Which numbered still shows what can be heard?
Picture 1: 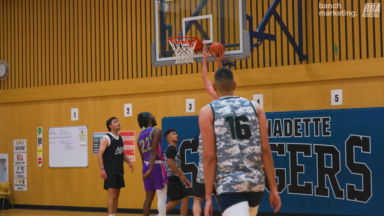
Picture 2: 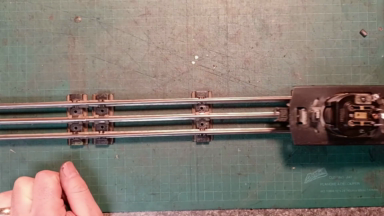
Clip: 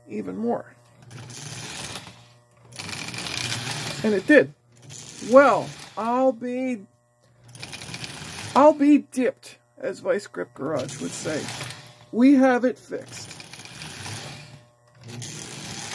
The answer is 2